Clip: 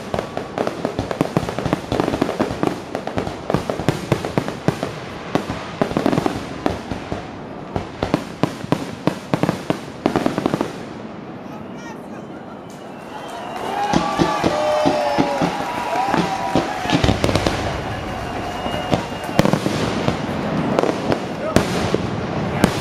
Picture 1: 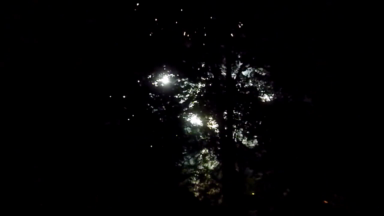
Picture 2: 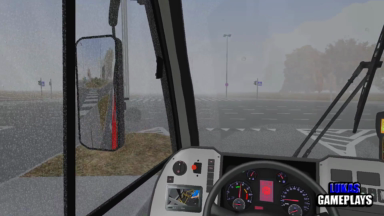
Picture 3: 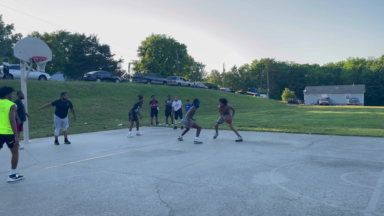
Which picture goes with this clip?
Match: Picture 1